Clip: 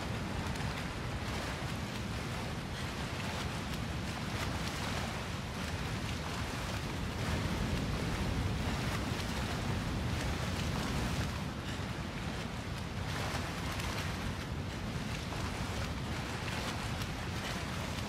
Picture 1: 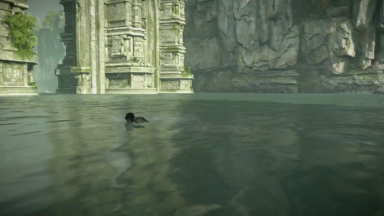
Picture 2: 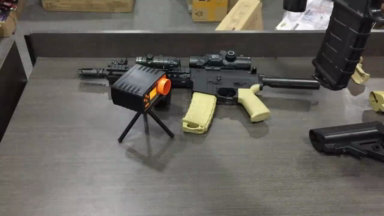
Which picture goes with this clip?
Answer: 1